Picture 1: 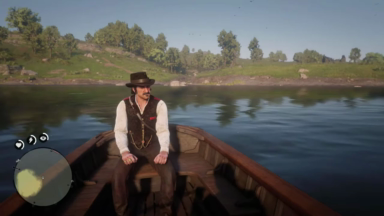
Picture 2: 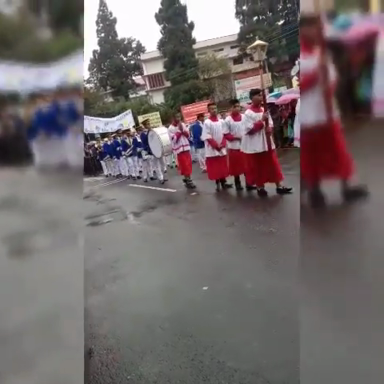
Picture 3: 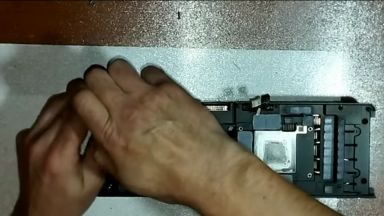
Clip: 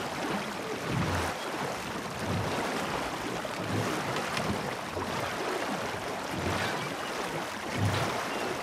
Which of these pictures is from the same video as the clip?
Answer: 1